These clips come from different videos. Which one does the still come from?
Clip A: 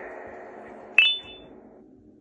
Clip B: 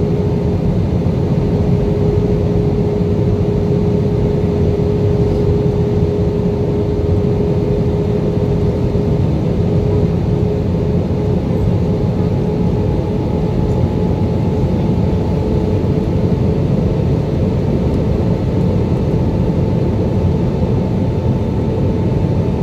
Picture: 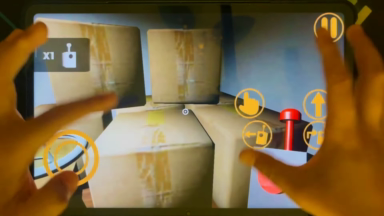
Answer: A